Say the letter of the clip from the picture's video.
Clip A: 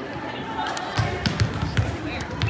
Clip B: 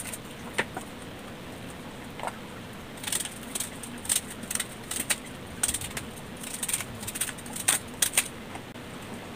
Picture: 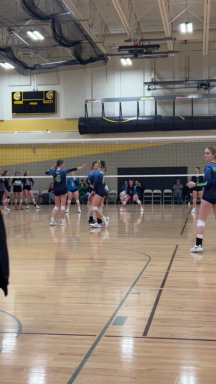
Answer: A